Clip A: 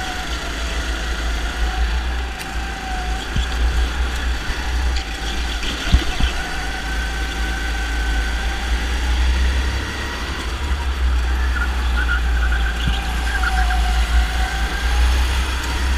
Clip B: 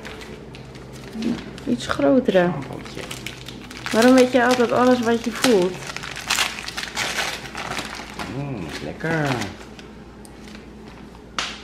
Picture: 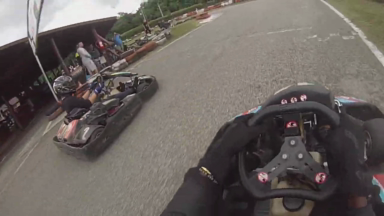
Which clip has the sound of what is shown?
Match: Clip A